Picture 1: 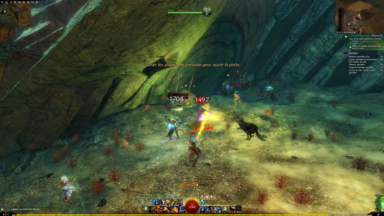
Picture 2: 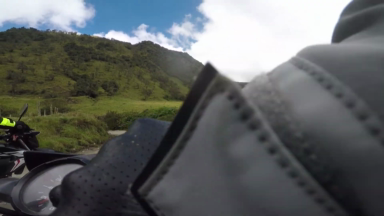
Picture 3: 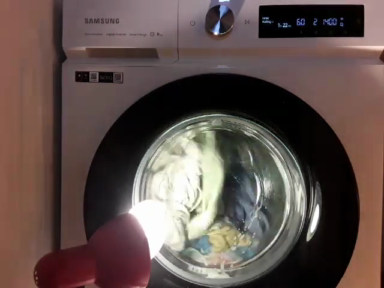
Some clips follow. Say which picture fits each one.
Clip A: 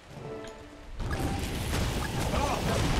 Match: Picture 1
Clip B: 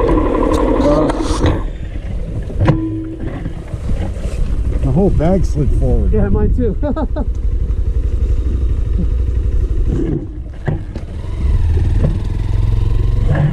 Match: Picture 2